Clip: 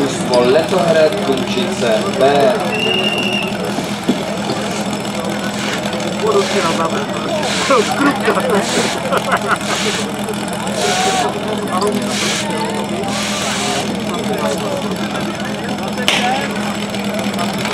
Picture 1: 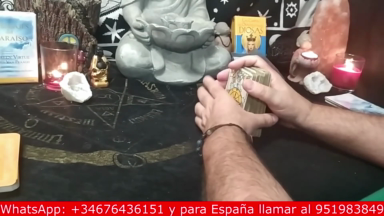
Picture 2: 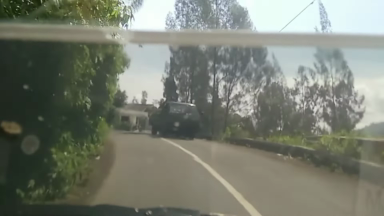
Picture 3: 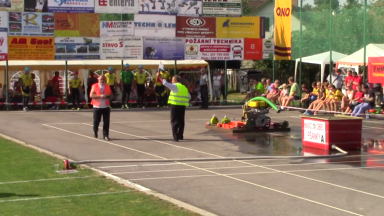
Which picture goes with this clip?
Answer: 3